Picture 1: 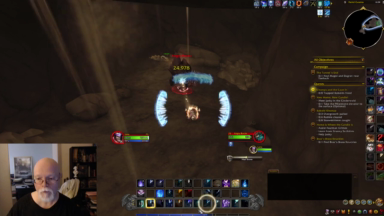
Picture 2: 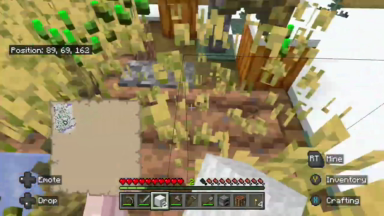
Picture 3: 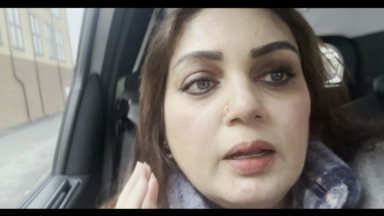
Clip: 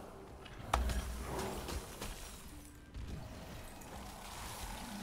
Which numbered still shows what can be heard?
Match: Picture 1